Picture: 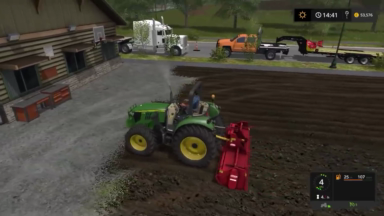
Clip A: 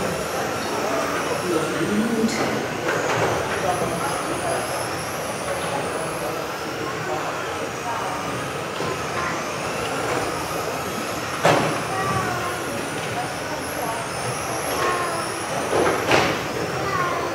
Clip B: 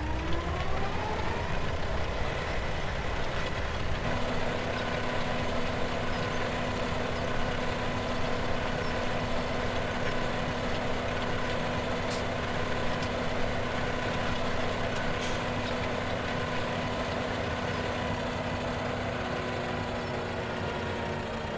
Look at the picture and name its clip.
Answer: B